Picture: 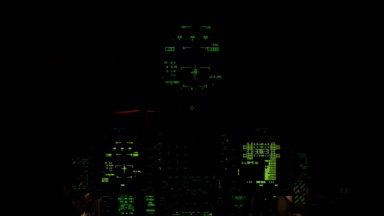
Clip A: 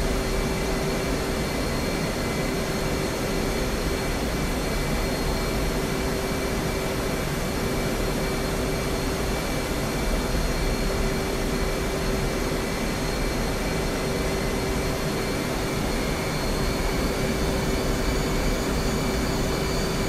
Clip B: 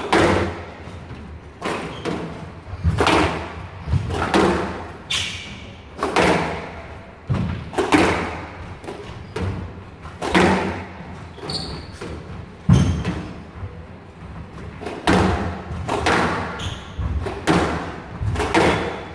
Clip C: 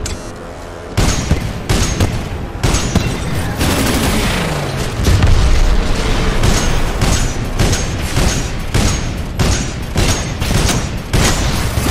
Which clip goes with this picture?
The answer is A